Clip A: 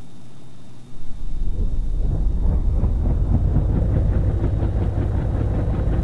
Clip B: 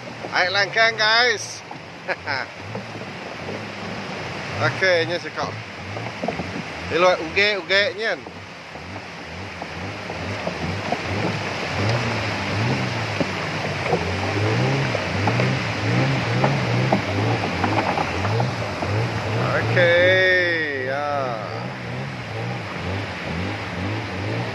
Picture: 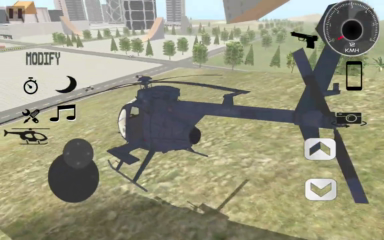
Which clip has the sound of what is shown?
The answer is A